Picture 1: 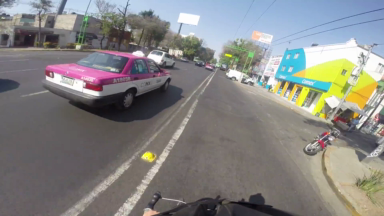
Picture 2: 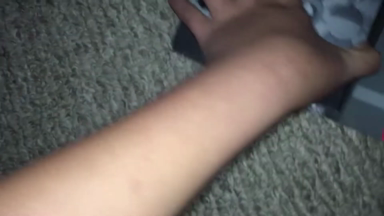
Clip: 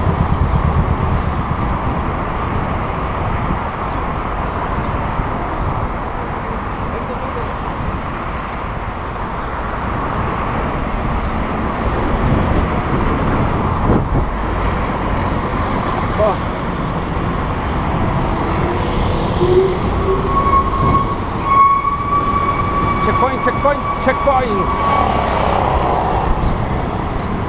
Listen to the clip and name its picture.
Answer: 1